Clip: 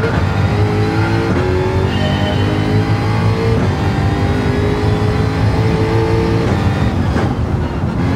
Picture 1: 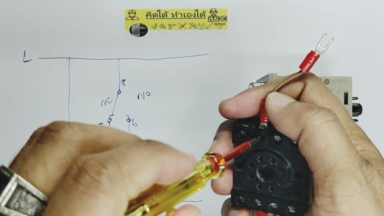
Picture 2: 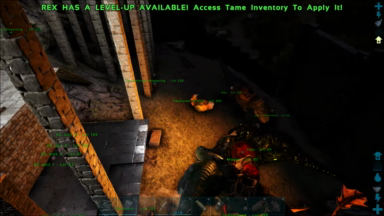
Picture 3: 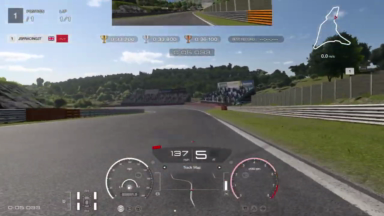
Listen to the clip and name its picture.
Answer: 3